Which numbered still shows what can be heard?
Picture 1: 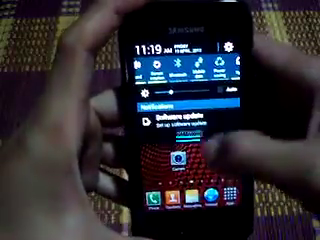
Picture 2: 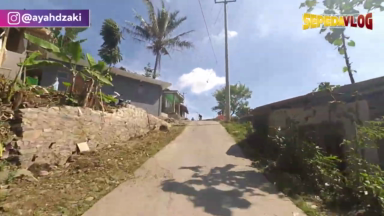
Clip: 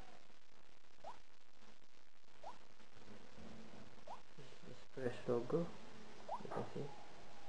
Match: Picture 1